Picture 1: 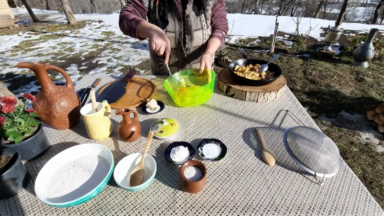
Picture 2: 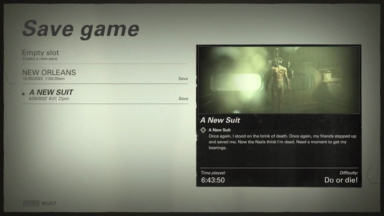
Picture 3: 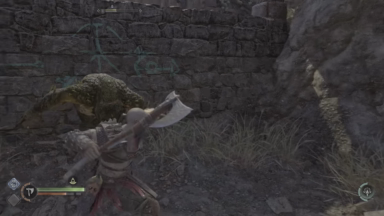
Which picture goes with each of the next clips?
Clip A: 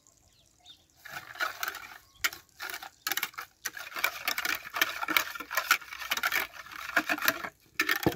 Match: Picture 1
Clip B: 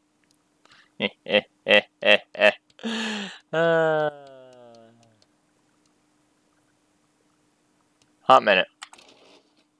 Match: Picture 2